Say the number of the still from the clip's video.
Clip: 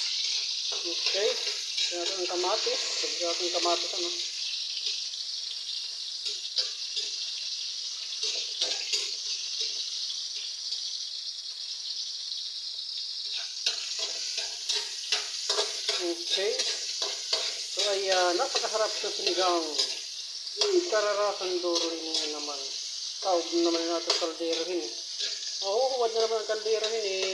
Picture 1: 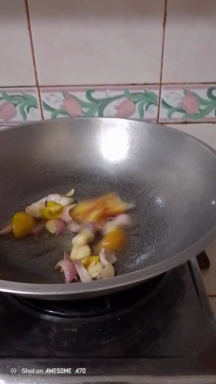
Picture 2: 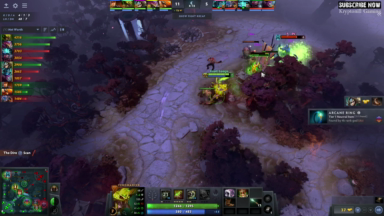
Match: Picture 1